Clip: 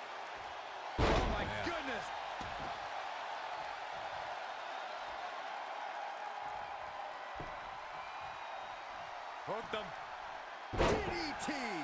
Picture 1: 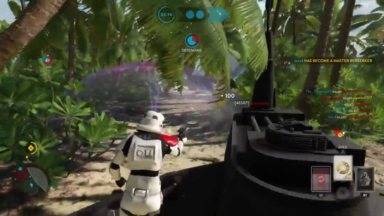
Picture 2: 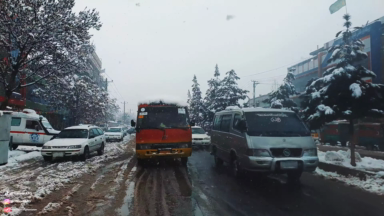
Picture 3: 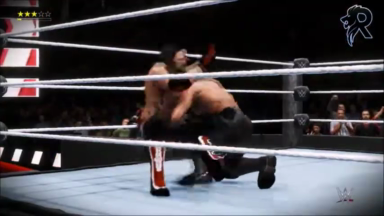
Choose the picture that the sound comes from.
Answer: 3